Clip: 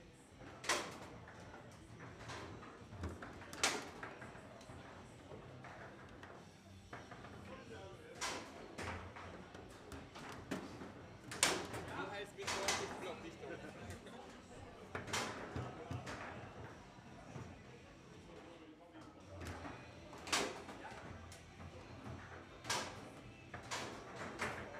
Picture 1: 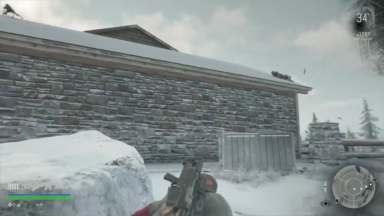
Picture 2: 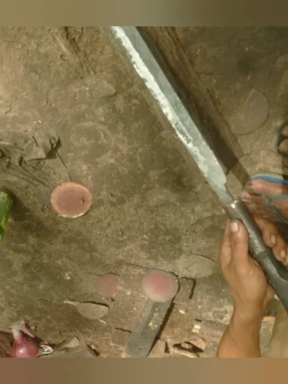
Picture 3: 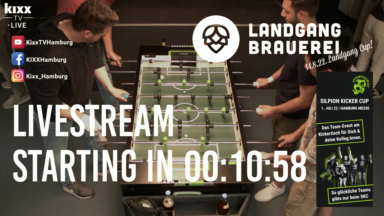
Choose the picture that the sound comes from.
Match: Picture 3